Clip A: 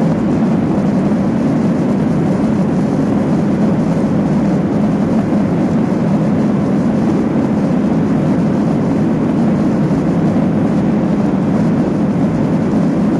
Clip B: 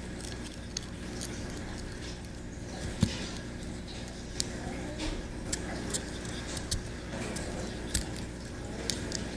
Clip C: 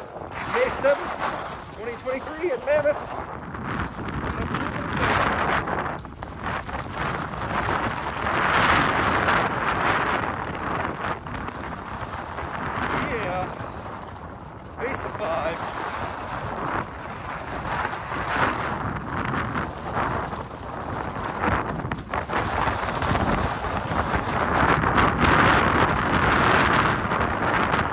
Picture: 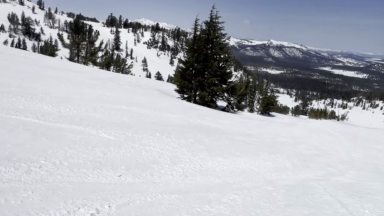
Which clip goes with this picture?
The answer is C